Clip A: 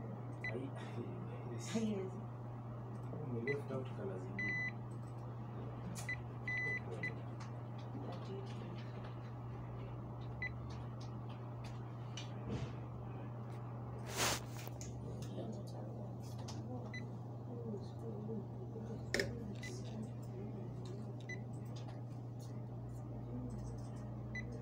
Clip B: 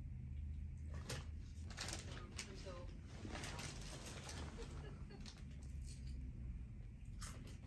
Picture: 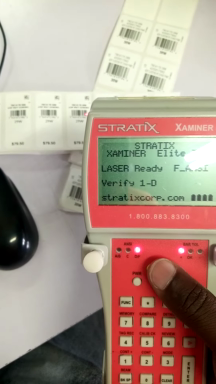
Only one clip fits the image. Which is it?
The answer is A